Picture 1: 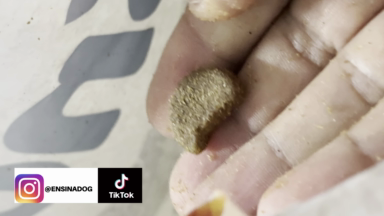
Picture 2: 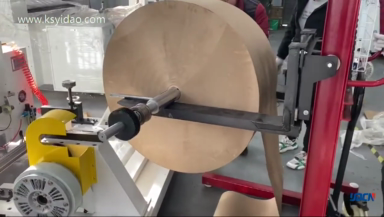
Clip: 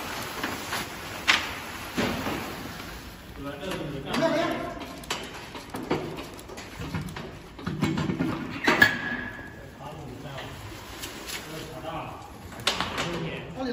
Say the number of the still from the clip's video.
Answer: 2